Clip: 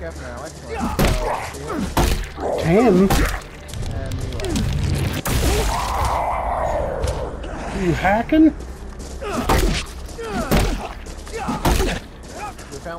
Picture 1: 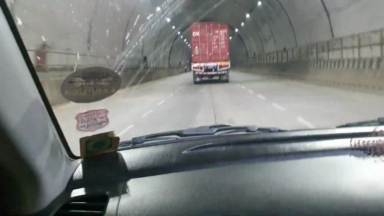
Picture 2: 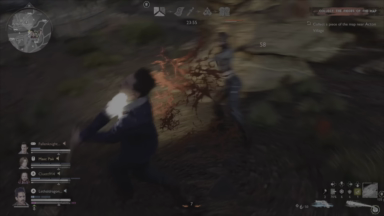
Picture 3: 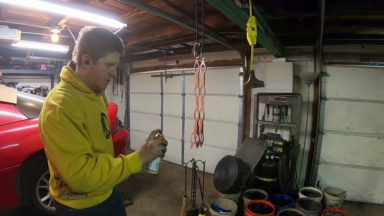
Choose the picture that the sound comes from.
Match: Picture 2